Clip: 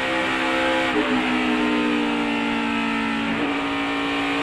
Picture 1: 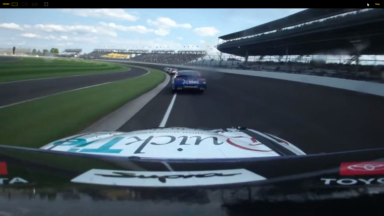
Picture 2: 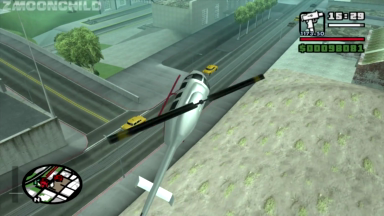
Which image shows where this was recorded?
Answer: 1